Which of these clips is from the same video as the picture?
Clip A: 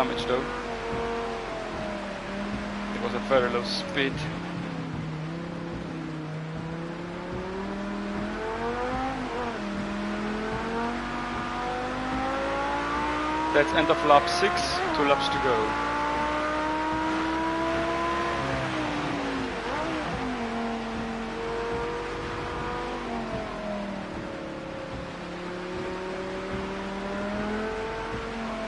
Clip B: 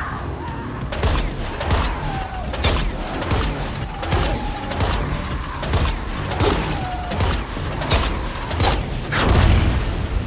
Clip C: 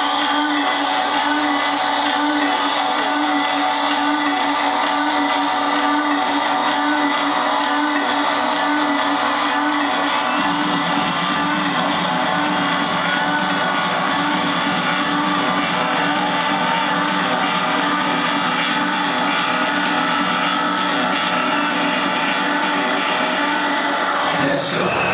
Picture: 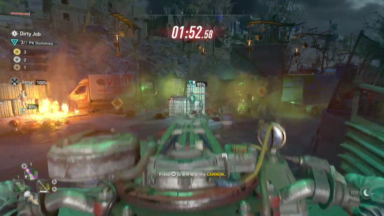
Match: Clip B